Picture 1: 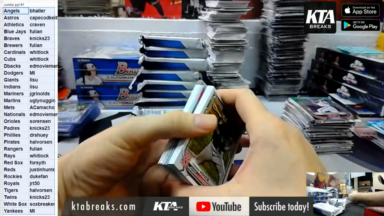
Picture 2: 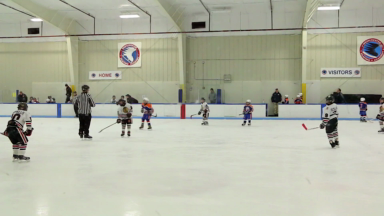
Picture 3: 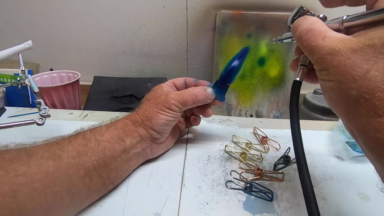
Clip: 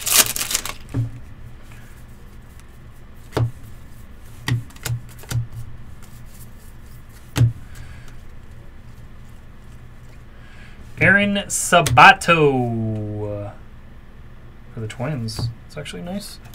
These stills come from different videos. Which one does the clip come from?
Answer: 1